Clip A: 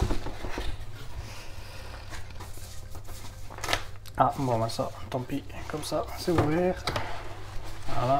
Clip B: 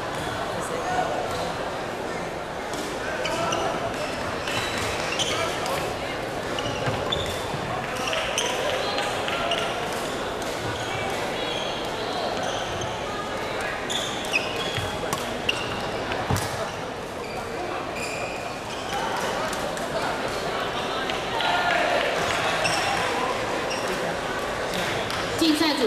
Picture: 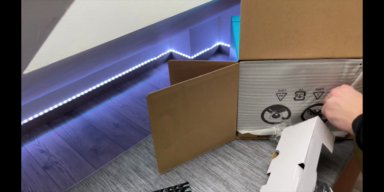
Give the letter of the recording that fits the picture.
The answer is A